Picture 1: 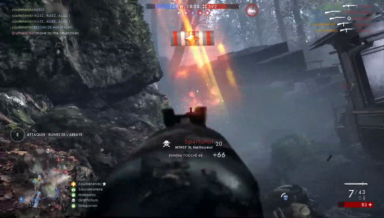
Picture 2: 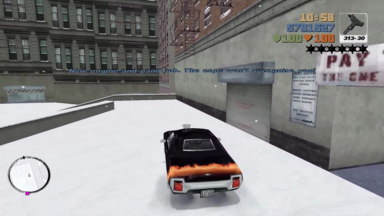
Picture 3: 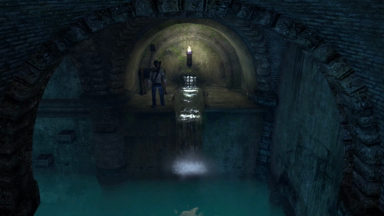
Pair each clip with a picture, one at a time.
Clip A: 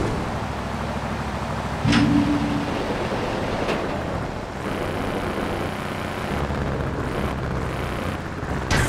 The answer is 2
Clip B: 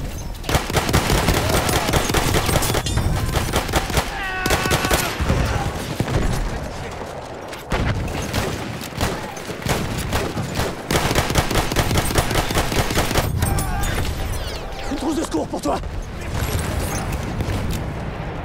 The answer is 1